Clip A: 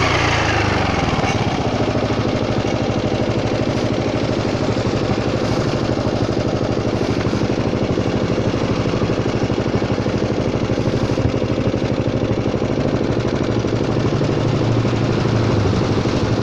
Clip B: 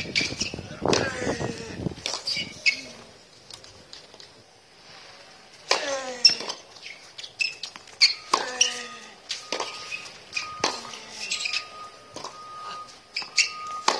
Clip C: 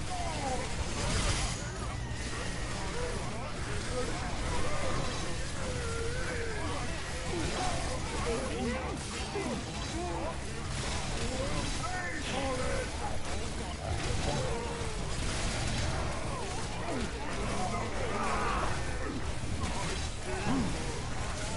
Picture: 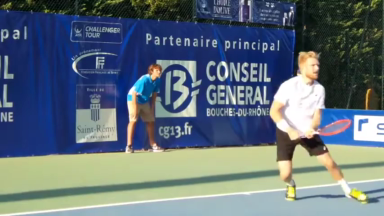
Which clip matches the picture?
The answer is B